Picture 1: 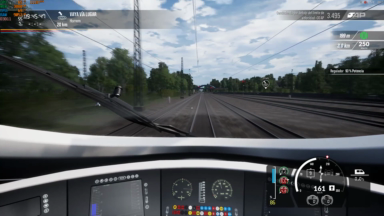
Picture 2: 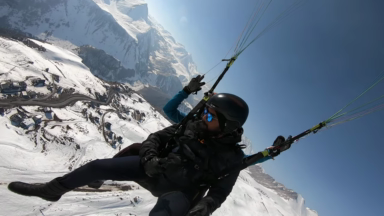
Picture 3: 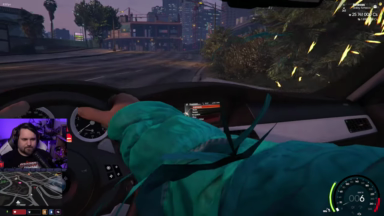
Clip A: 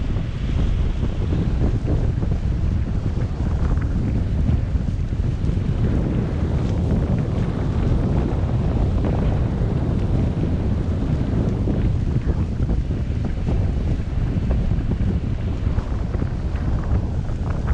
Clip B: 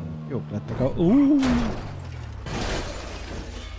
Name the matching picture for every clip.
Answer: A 2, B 3